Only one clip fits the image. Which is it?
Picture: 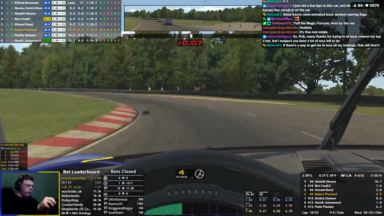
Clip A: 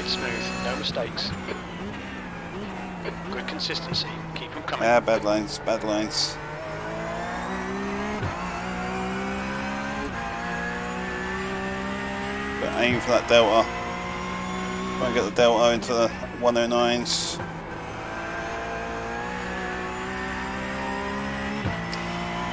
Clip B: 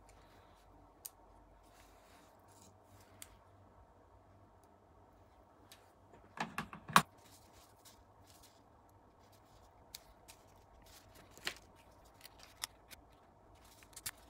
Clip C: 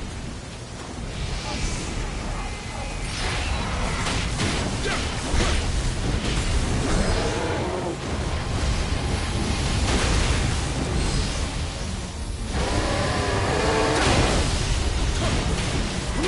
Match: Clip A